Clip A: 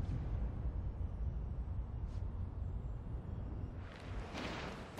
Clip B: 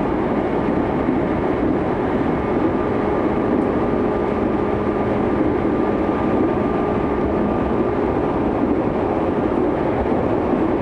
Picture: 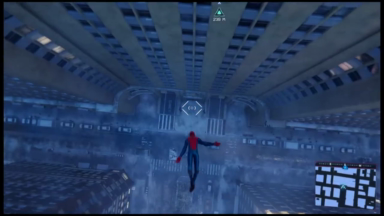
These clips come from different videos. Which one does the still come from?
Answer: A